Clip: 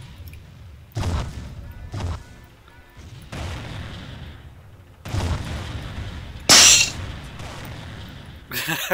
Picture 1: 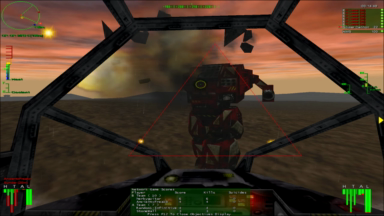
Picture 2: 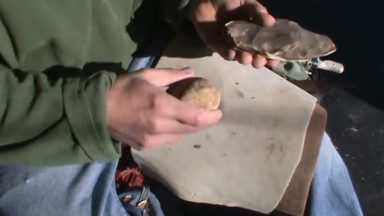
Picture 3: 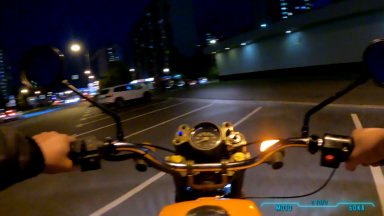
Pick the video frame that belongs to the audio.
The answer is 1